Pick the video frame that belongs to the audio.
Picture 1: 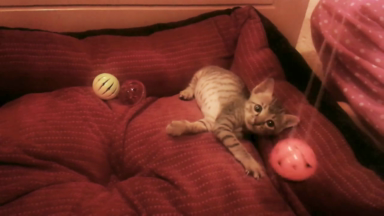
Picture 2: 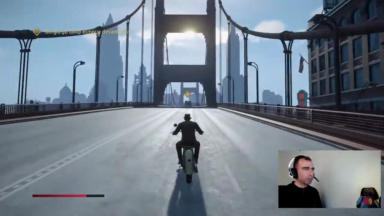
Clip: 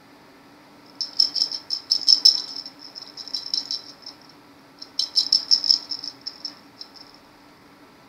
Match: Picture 1